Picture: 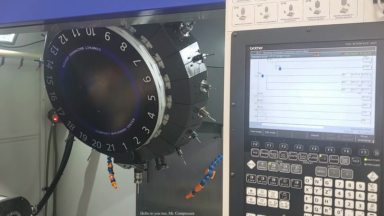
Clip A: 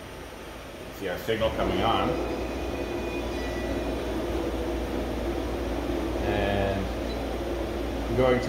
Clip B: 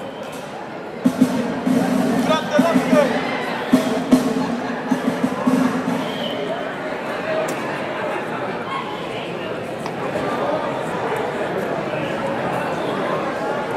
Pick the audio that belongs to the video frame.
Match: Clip A